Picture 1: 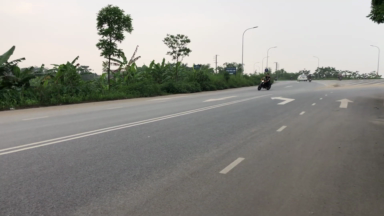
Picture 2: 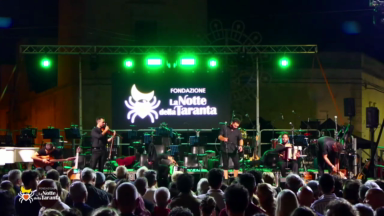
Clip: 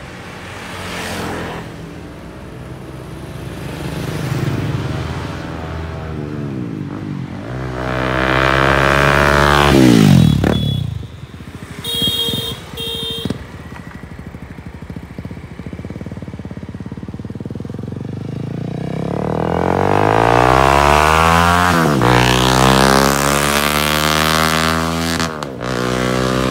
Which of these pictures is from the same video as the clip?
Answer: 1